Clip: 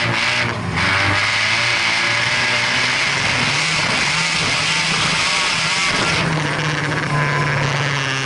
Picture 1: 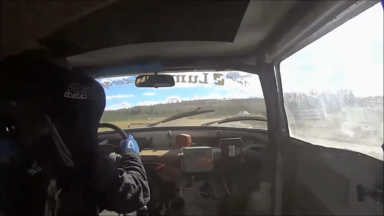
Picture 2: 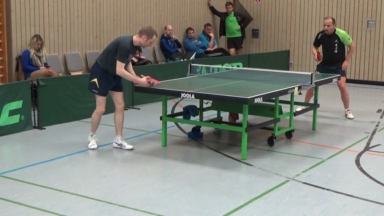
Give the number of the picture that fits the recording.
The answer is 1